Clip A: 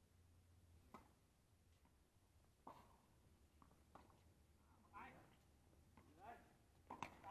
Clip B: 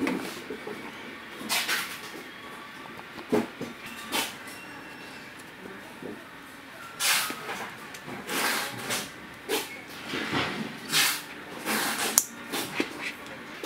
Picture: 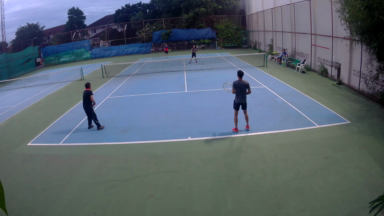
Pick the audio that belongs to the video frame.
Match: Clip A